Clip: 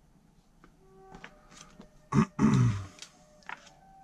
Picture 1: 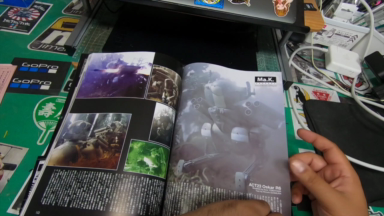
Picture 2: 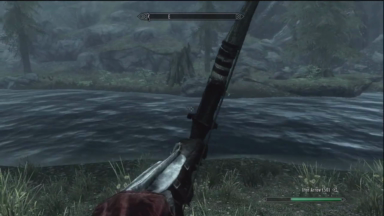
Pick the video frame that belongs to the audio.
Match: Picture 1